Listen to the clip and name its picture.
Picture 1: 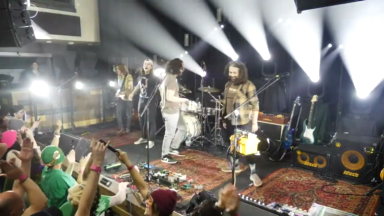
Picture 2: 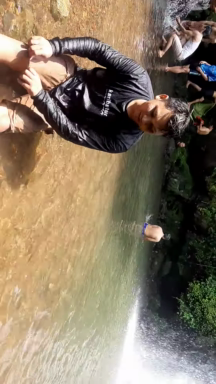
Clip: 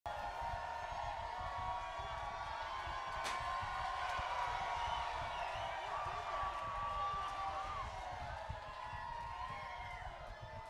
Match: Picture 1